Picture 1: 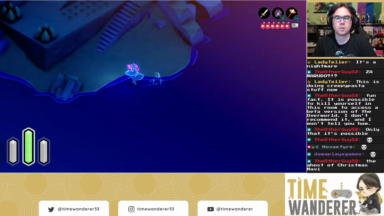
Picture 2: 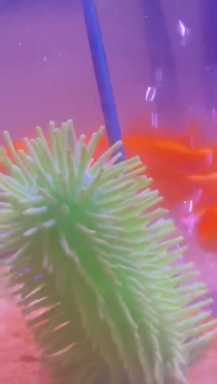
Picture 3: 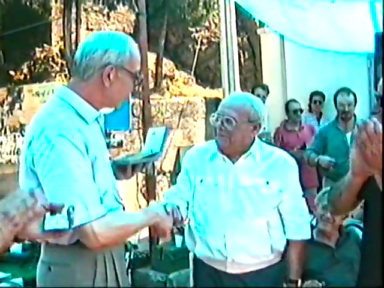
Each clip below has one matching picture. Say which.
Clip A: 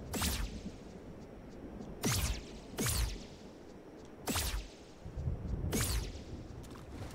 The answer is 1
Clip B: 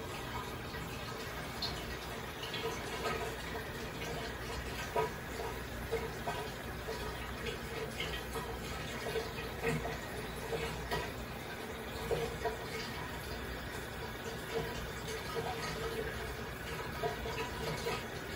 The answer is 2